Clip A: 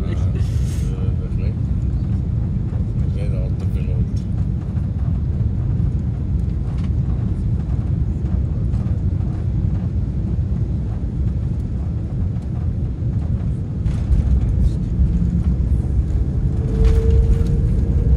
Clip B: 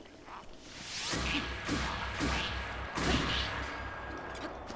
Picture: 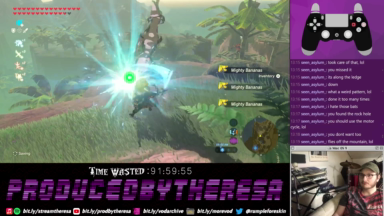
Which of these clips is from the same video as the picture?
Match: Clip B